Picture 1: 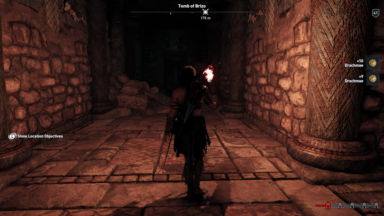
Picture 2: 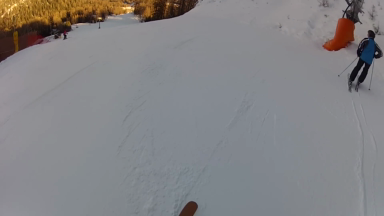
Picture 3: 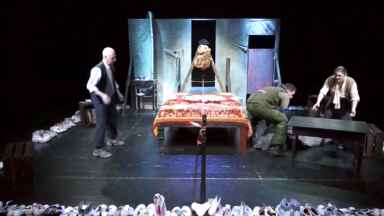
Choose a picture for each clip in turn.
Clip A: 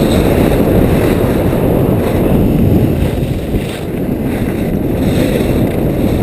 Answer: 2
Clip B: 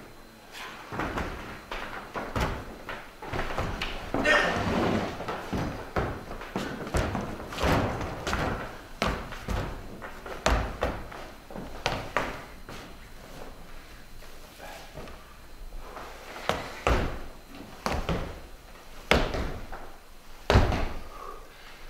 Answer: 3